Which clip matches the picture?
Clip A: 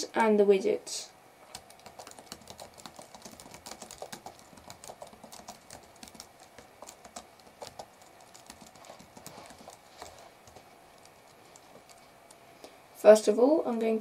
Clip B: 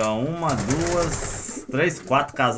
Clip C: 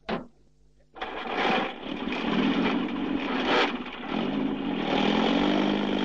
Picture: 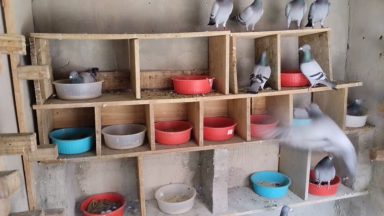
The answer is B